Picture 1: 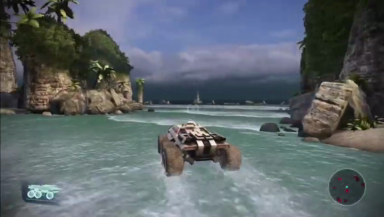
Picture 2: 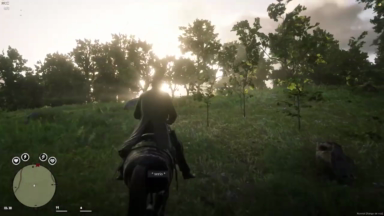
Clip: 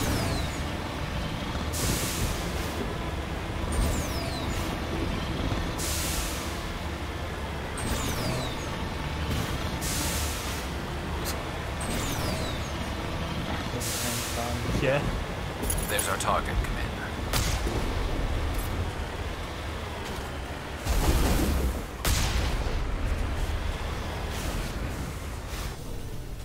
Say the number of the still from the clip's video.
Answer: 1